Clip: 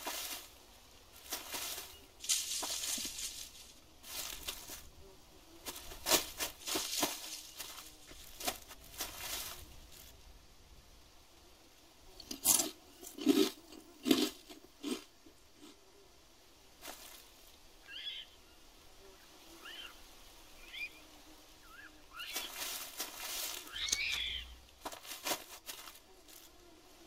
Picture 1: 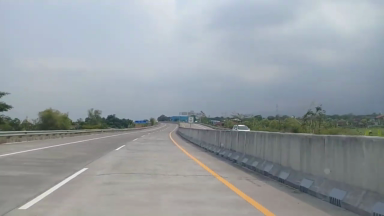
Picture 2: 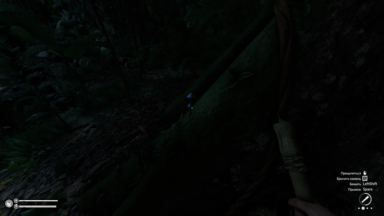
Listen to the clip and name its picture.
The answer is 2